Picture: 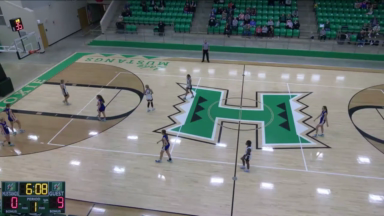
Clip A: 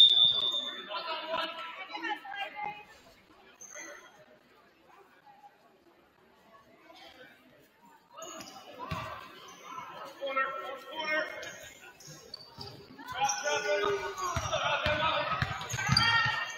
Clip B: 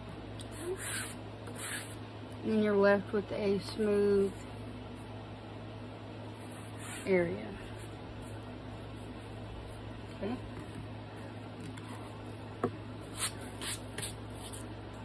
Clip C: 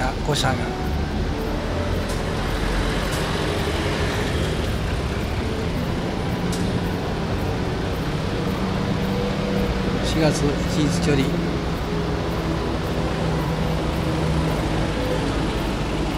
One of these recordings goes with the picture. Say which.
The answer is A